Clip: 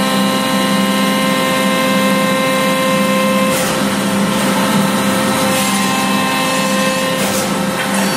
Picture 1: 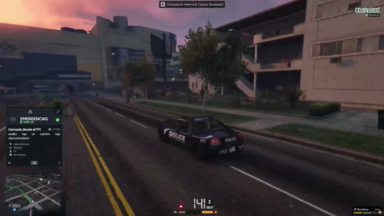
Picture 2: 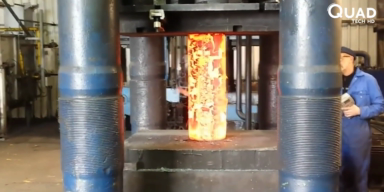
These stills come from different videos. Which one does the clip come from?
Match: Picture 2